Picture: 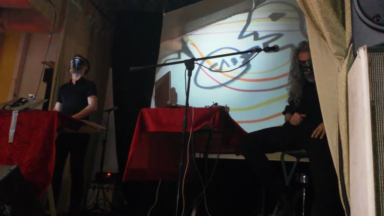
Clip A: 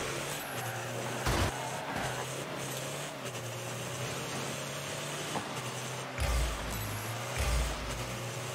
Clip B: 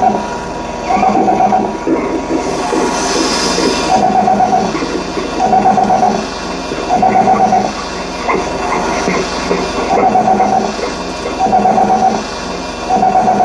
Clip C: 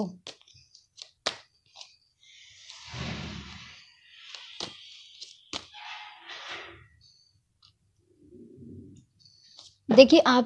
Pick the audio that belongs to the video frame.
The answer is B